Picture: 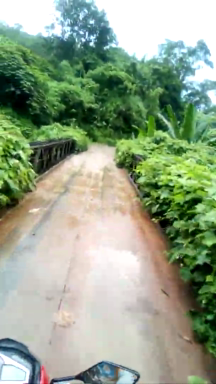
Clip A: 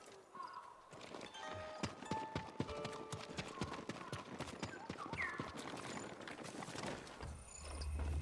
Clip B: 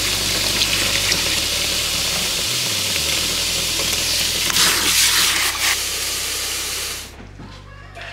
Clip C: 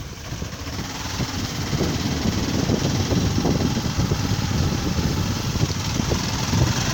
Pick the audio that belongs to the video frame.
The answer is C